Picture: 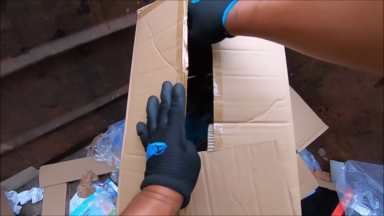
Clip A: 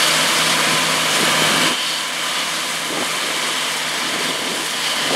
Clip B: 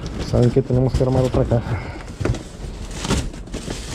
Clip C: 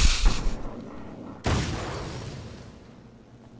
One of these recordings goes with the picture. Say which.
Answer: B